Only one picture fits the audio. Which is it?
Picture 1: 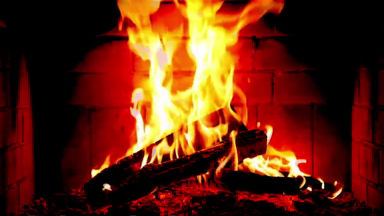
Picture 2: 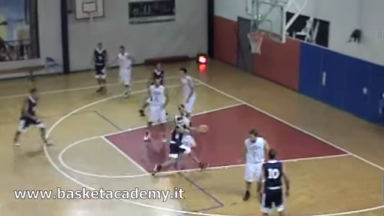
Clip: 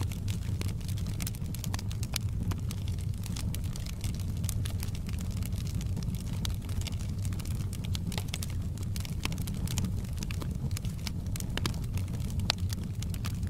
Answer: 1